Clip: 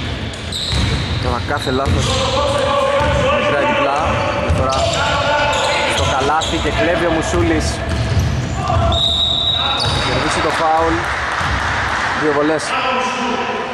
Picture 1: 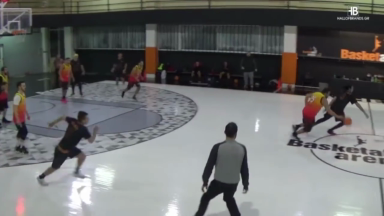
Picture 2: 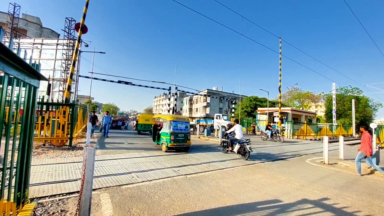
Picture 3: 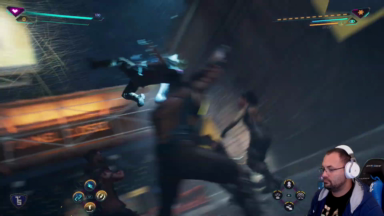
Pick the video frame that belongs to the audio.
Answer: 1